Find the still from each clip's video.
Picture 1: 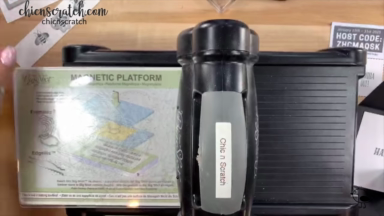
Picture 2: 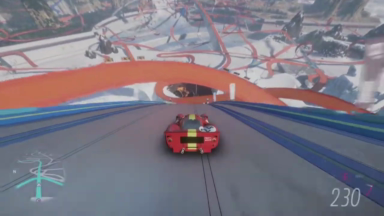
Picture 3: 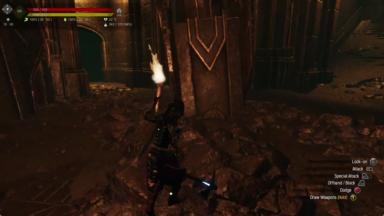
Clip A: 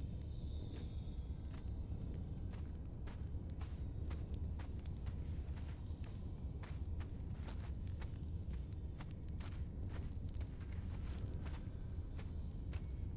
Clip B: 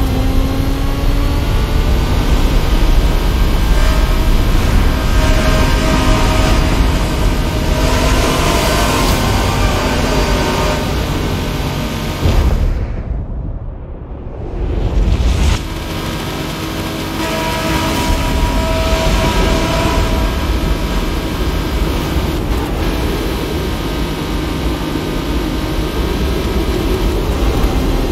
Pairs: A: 3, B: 2